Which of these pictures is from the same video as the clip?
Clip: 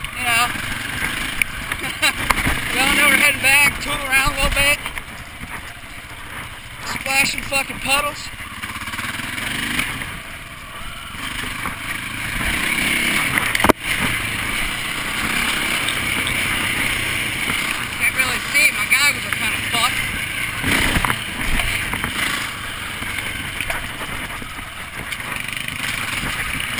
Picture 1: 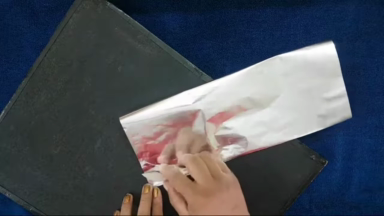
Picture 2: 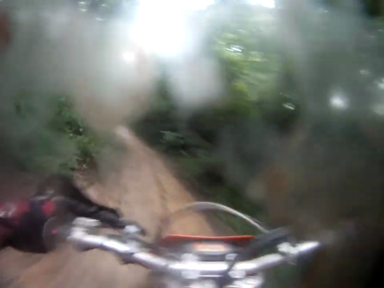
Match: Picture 2